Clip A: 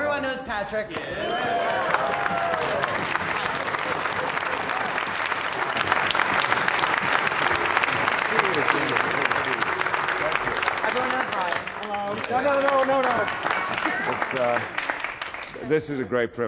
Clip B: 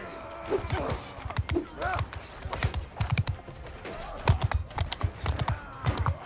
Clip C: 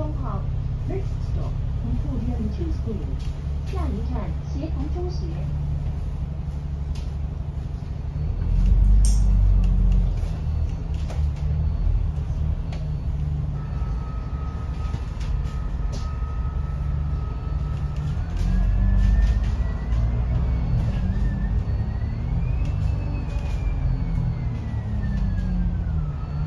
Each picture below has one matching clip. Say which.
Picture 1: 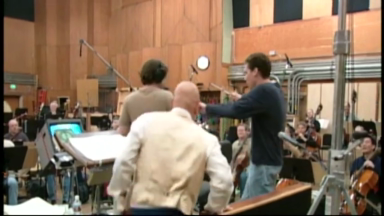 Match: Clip A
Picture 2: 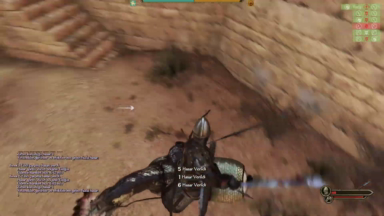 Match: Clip B